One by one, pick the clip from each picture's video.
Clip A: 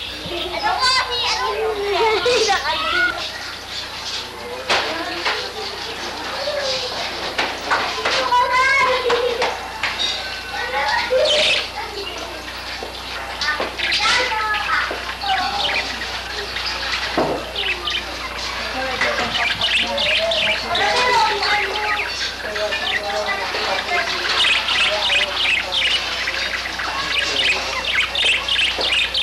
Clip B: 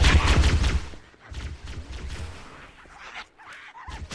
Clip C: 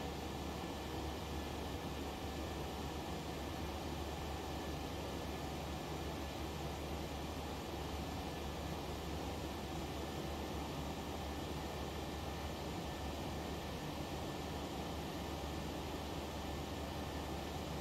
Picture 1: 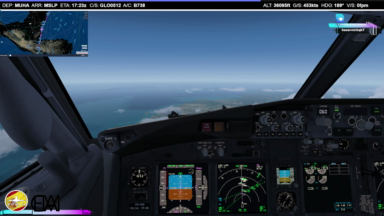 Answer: C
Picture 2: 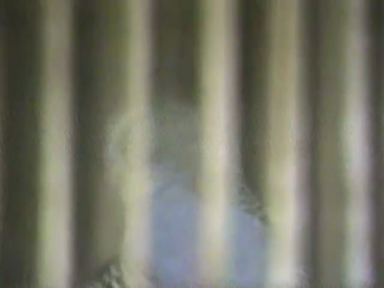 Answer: A